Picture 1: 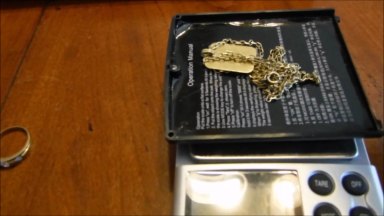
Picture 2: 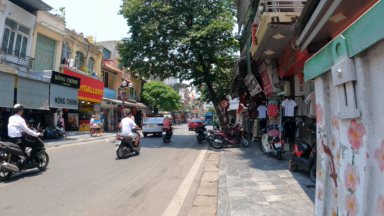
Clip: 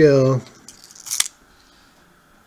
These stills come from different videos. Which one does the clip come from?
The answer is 1